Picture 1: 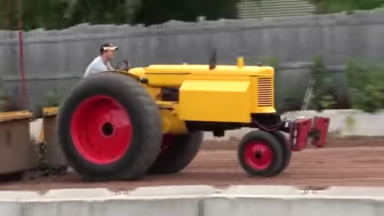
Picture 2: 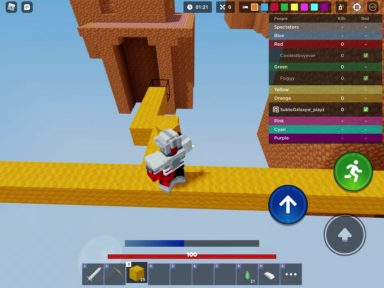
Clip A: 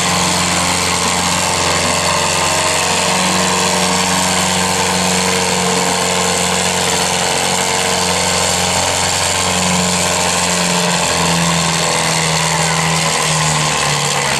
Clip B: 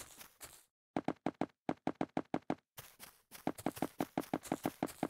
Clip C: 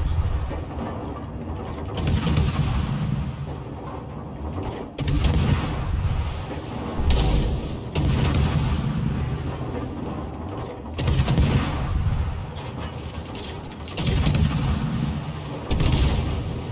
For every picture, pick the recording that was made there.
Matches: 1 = A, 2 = B